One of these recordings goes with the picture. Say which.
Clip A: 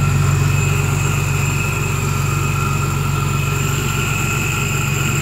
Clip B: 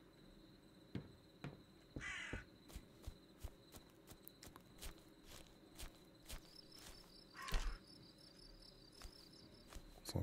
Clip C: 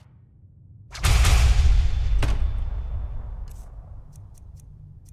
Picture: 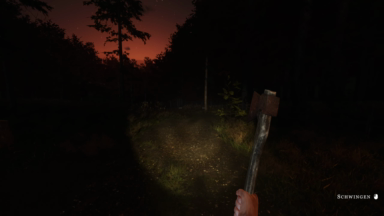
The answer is B